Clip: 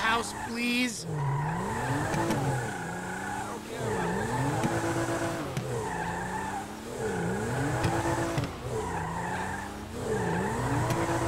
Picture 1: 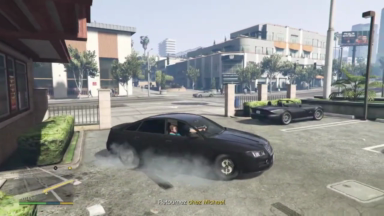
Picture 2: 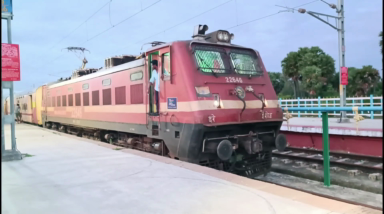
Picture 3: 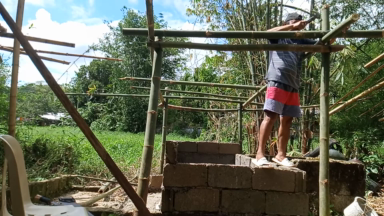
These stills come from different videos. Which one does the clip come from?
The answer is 1